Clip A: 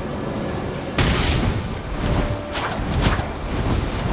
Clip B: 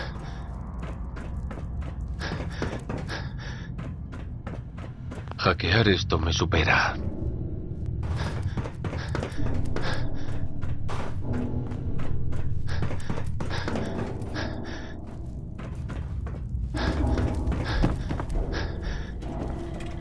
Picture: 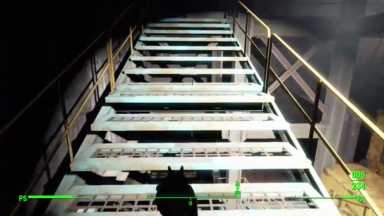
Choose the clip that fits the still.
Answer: B